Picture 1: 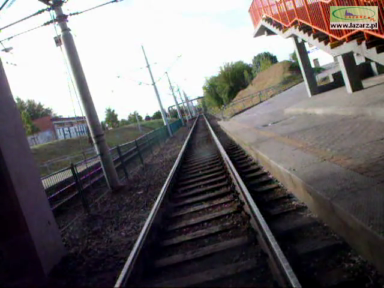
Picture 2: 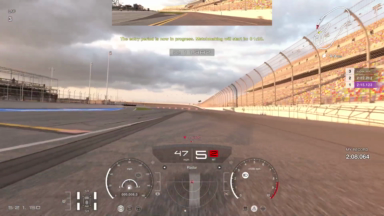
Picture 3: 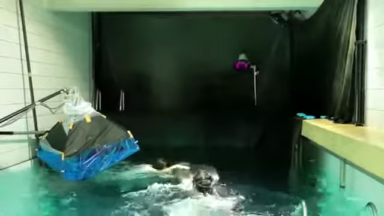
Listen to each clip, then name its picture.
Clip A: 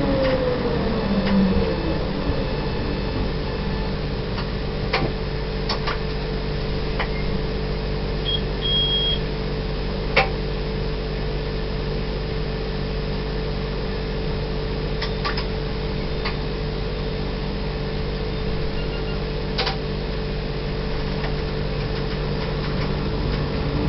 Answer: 1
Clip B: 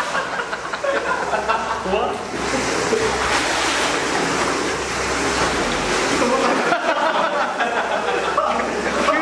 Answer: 3